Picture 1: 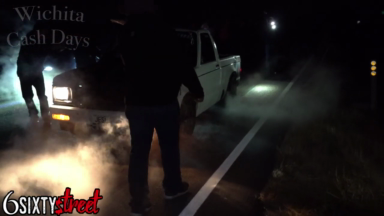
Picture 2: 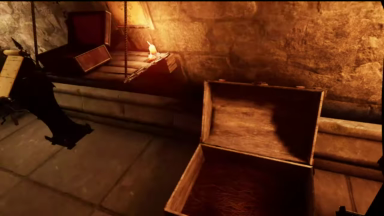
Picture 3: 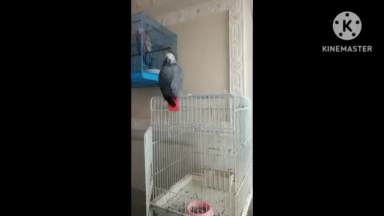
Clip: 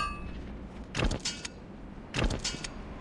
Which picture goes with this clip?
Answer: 2